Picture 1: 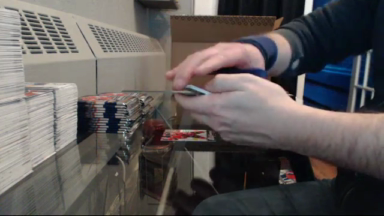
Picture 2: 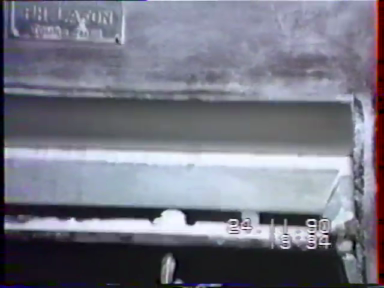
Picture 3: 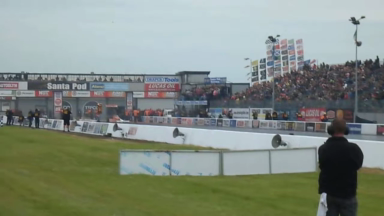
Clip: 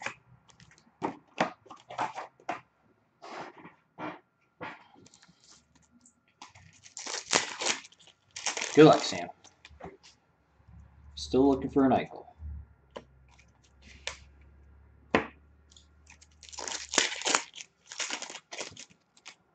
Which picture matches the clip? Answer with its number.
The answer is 1